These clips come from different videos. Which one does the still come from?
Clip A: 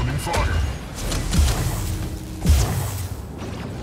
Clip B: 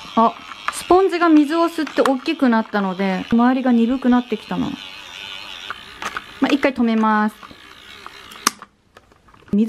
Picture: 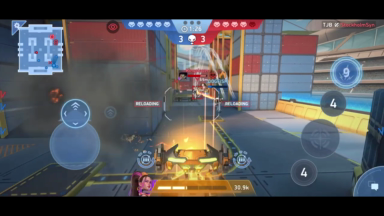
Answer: A